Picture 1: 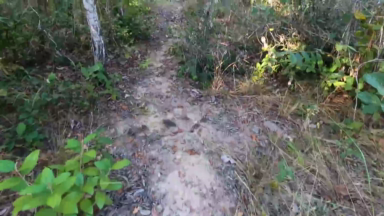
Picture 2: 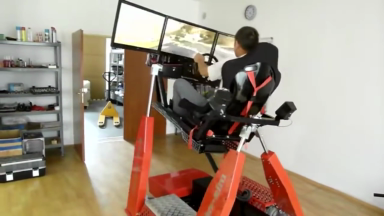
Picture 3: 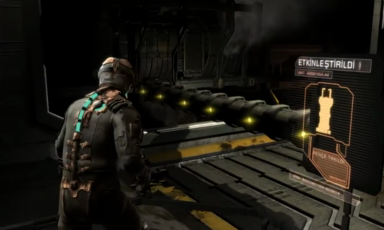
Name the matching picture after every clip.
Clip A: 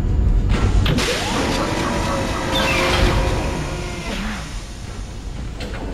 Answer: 3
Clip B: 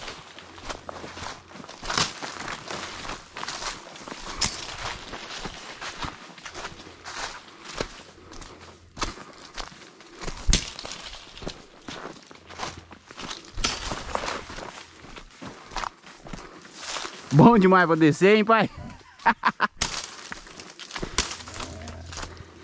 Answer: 1